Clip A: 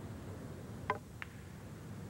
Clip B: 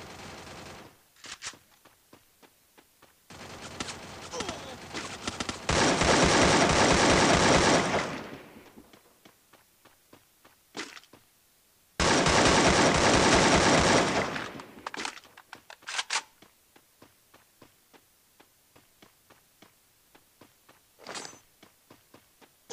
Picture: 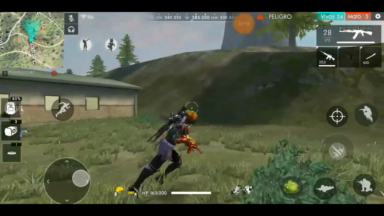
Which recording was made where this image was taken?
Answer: B